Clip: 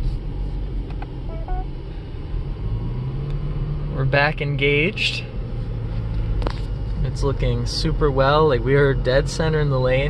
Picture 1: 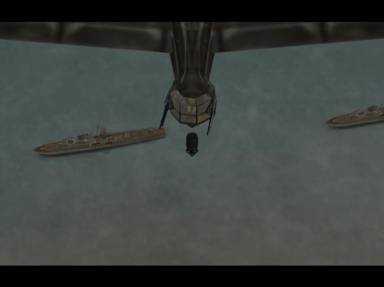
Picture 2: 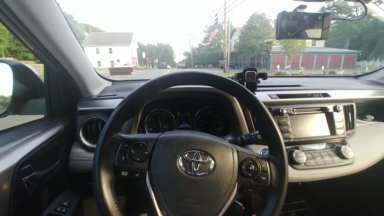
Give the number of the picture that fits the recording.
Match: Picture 2